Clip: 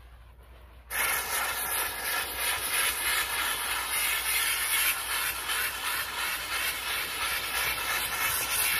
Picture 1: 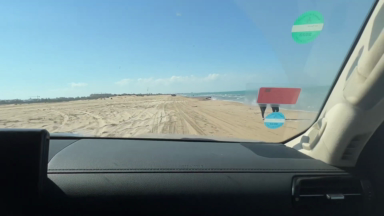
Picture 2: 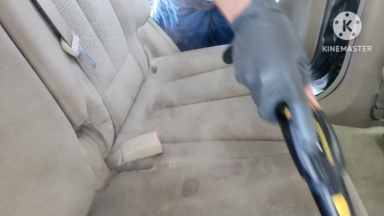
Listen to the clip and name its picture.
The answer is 2